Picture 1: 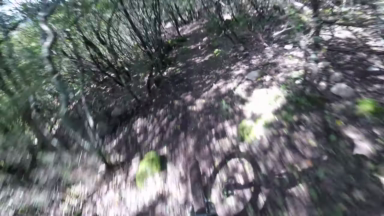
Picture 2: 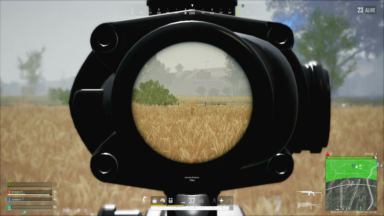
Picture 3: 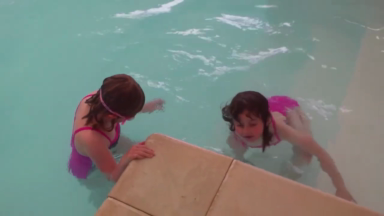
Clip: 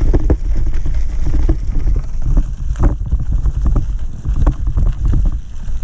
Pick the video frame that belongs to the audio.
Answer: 1